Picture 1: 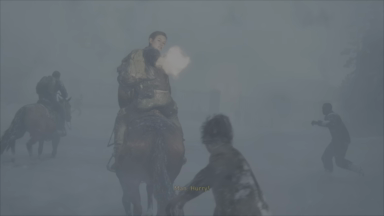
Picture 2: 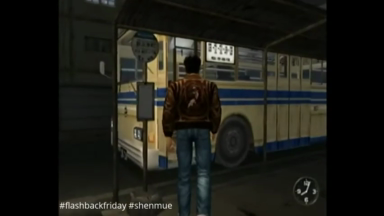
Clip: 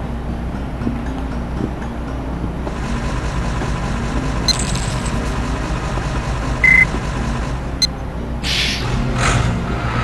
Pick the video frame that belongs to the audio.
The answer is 2